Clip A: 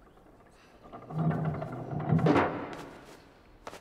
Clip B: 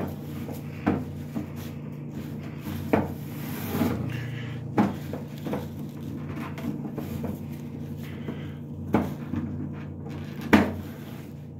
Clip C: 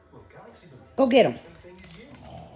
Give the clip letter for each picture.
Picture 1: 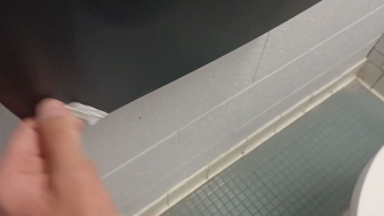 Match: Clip B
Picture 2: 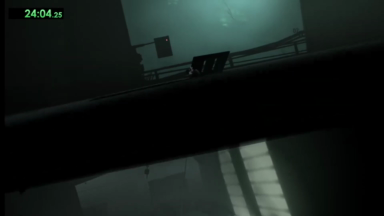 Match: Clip A